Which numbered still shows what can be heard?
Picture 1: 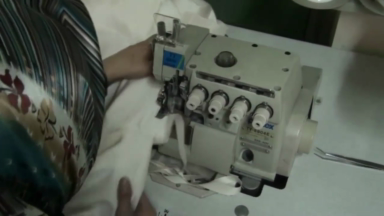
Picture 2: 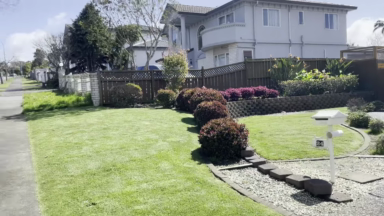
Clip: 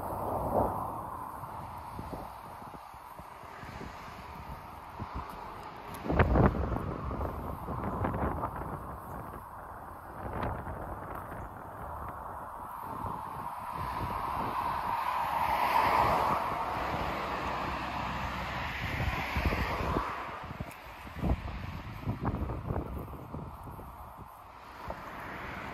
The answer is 2